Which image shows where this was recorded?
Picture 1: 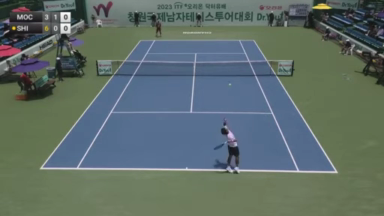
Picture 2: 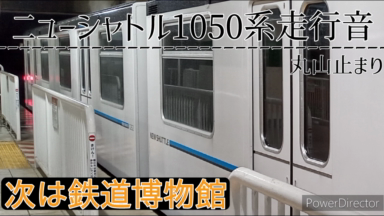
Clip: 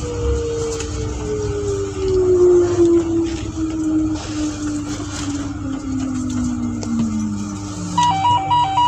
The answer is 2